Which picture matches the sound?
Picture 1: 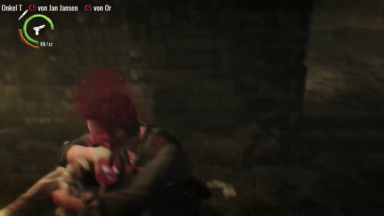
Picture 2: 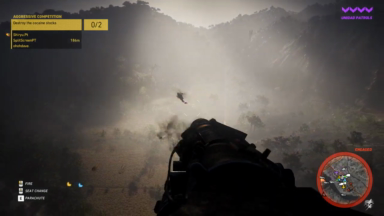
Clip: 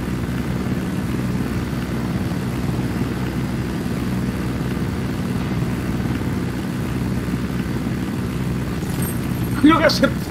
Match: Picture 2